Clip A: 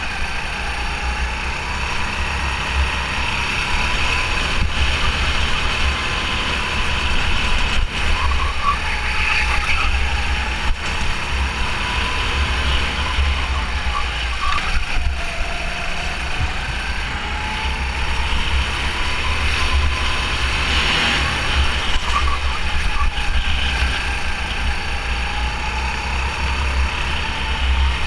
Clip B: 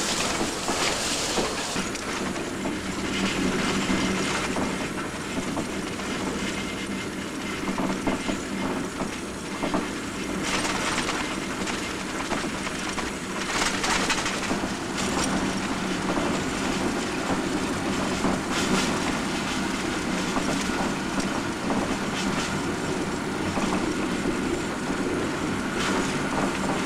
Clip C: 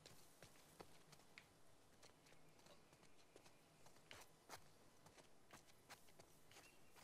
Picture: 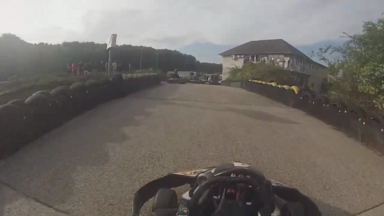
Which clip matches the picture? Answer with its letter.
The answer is A